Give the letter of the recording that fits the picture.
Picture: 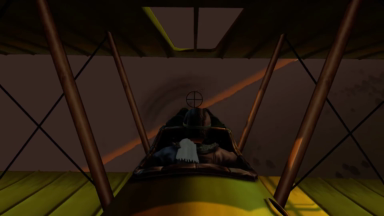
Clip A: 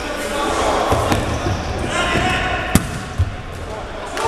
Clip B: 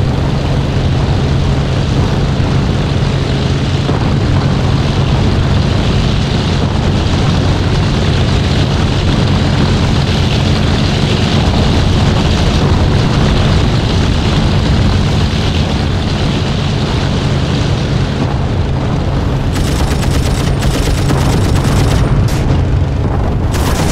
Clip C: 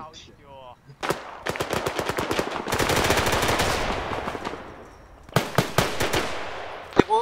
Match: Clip B